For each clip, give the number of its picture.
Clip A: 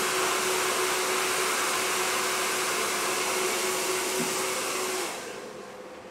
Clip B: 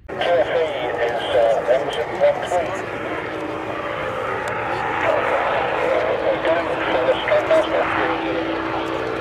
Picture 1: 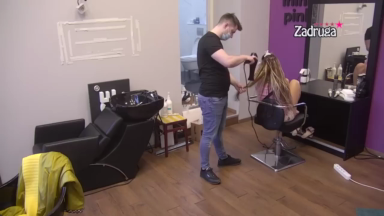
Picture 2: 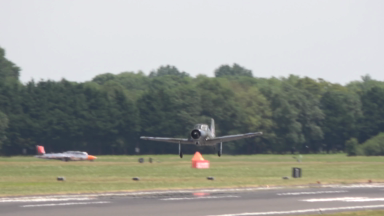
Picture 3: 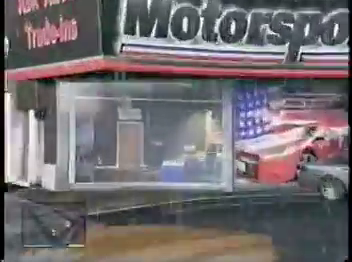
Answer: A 1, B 2